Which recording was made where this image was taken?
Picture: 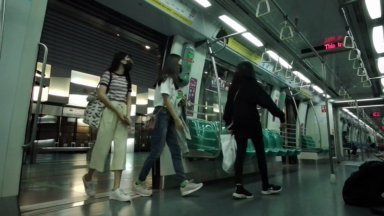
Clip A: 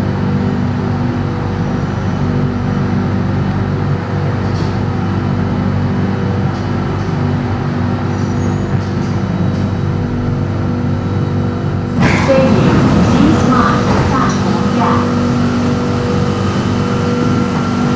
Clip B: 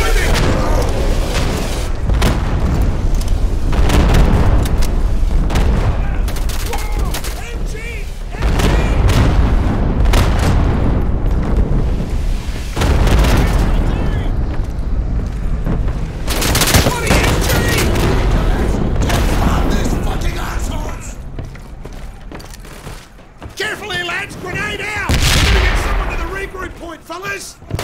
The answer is A